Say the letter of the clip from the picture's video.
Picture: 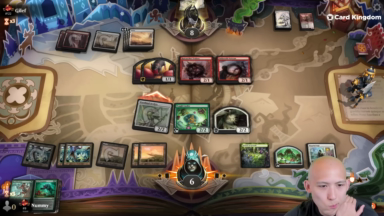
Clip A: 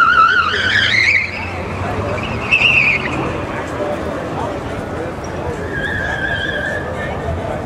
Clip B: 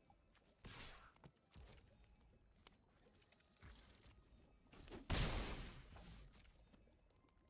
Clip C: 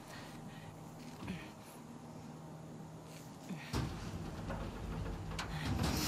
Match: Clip B